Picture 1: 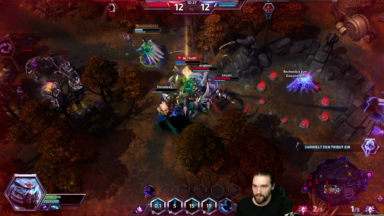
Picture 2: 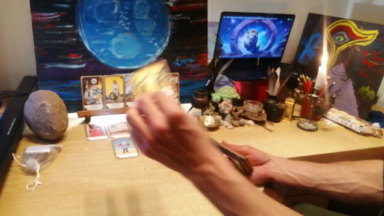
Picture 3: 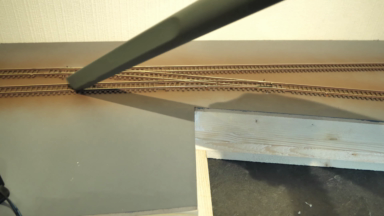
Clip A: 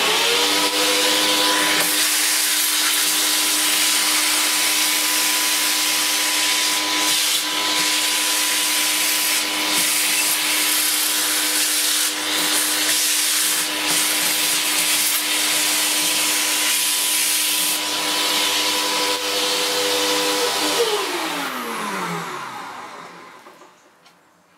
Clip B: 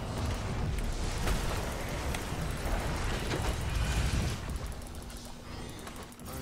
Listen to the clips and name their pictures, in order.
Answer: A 3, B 1